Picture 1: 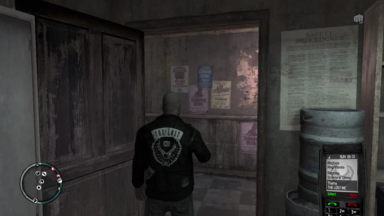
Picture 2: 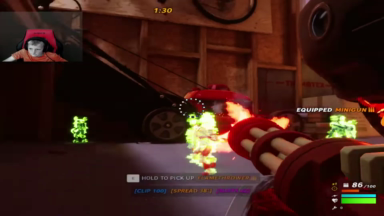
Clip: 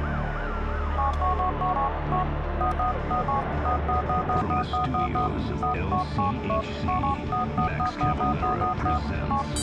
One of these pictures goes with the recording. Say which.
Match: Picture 1